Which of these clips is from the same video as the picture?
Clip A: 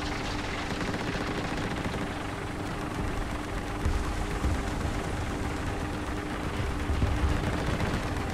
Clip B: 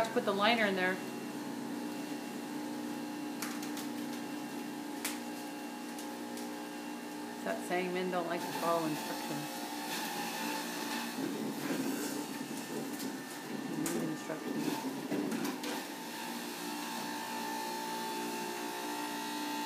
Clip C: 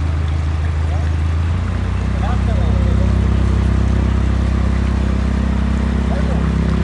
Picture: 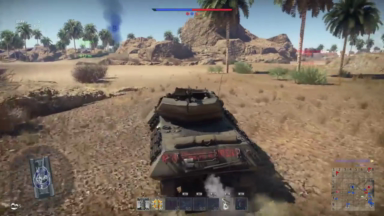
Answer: A